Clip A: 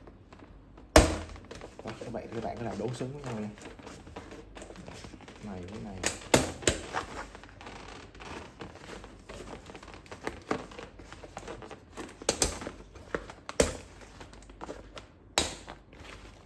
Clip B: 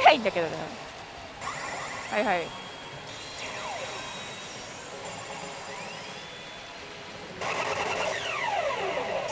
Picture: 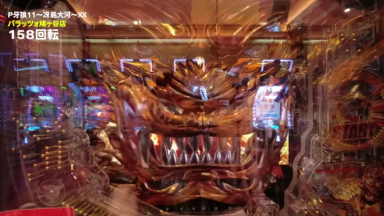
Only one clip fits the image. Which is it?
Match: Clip B